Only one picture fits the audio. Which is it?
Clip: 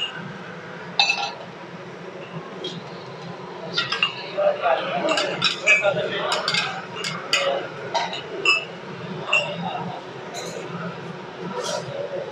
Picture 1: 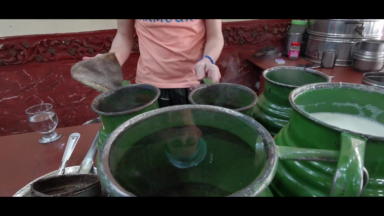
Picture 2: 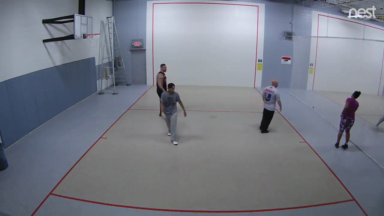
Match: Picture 1